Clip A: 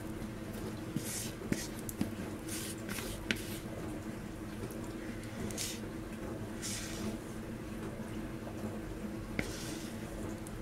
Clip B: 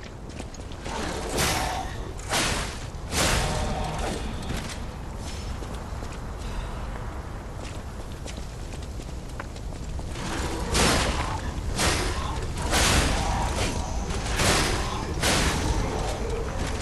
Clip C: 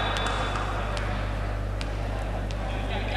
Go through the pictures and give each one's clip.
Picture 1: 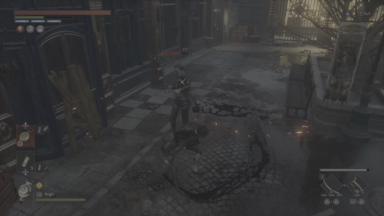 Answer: B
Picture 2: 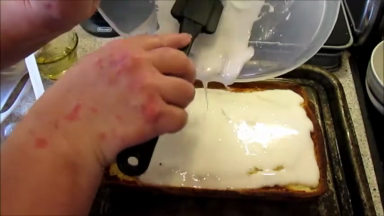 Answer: A